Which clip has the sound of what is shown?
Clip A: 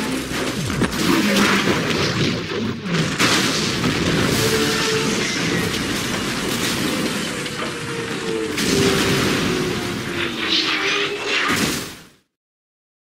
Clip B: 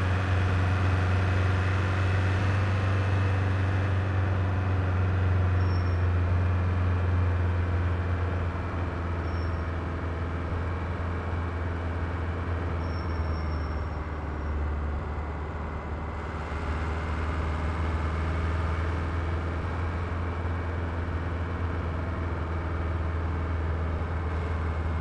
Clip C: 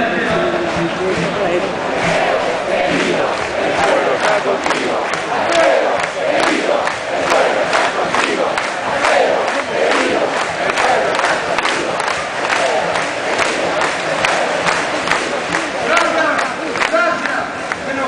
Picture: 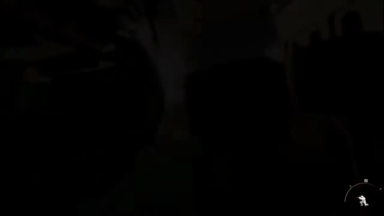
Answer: A